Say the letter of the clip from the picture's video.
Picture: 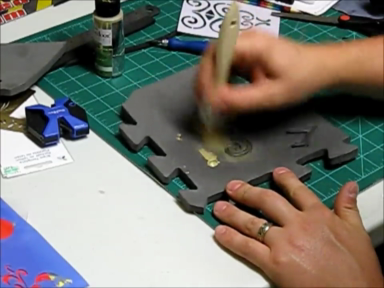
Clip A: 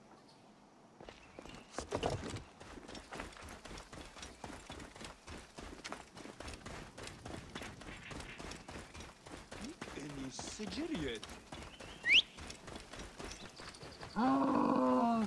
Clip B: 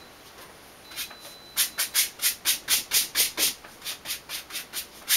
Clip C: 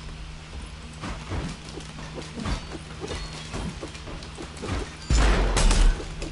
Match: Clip B